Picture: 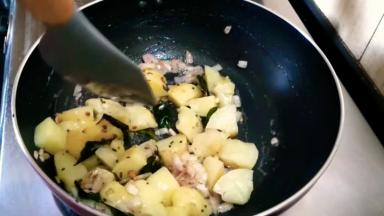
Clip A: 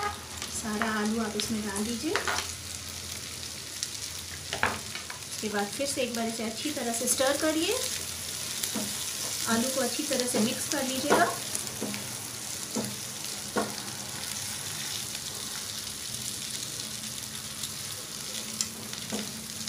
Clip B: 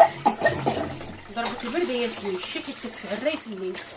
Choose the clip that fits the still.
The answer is A